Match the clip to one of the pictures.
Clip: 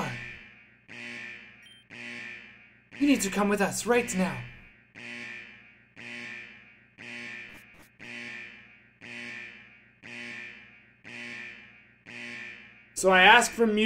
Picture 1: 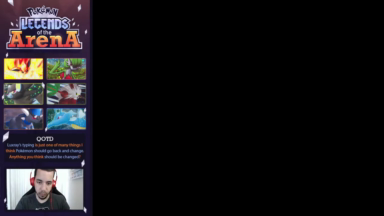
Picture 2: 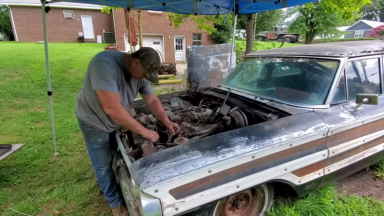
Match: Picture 1